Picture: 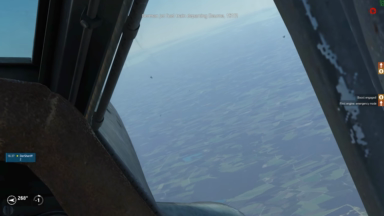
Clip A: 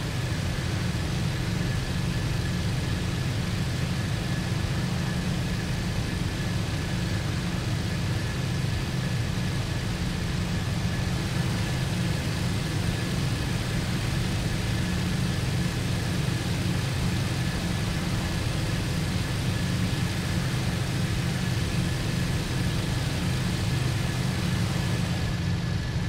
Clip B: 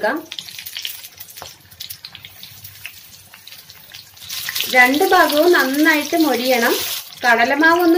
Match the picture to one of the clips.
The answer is A